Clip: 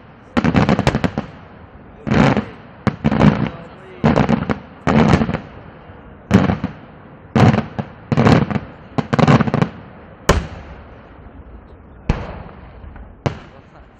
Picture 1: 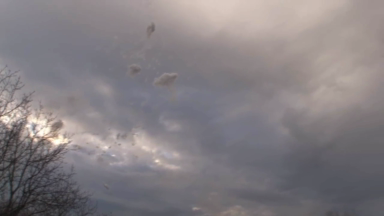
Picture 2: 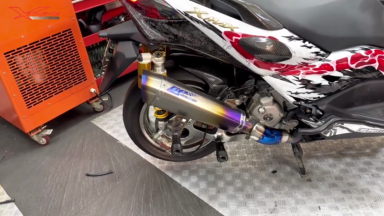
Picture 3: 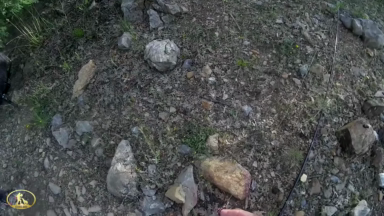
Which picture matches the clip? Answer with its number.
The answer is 1